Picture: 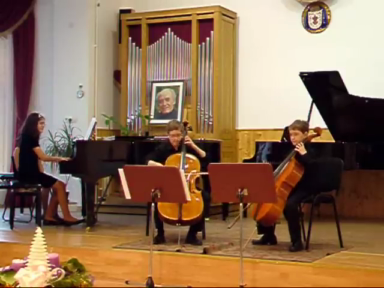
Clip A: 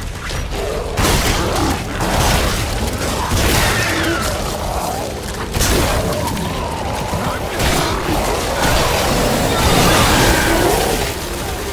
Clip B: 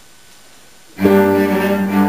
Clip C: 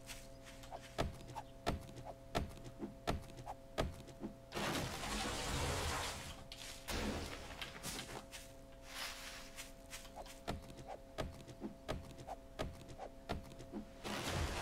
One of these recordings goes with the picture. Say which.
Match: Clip B